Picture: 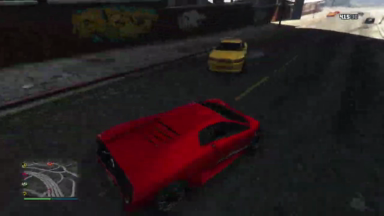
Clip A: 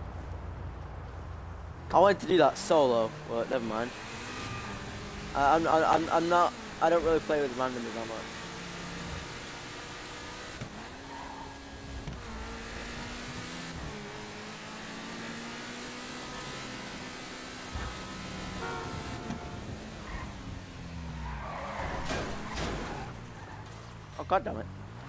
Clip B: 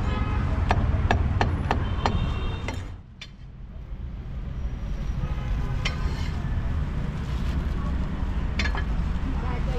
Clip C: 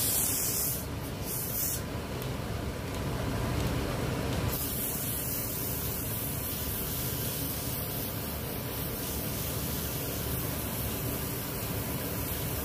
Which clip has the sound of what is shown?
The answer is A